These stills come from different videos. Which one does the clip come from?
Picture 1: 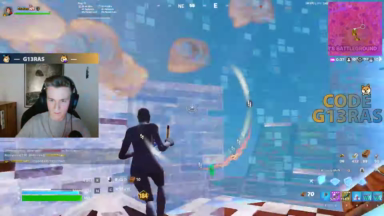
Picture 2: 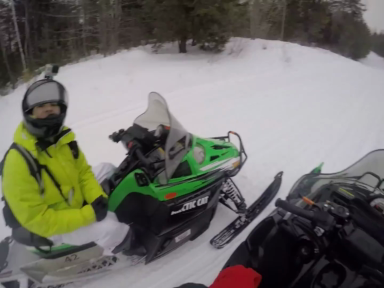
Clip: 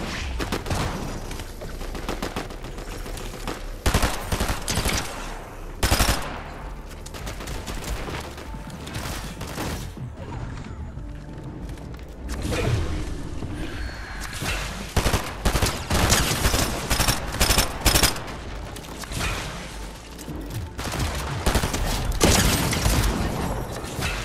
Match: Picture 1